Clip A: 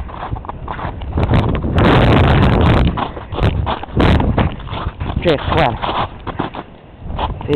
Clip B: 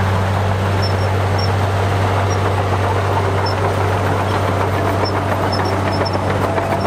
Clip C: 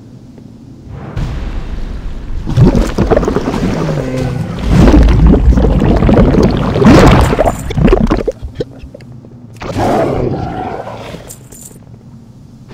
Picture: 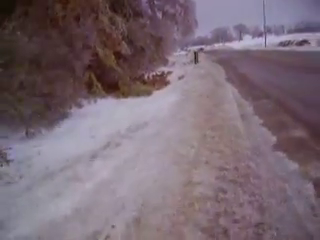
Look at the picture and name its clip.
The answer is A